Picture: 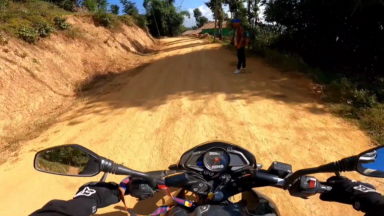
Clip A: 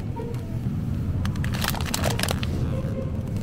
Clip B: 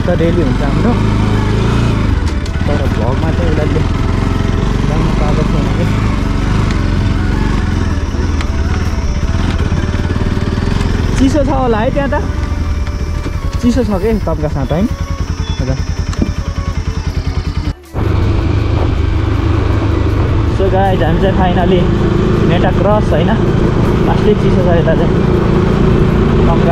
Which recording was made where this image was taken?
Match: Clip B